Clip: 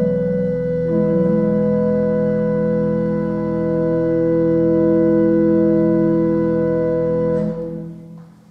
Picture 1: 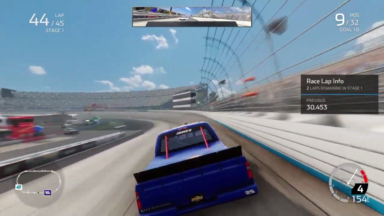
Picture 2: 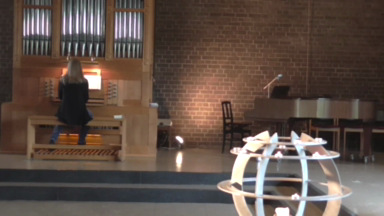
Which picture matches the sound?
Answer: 2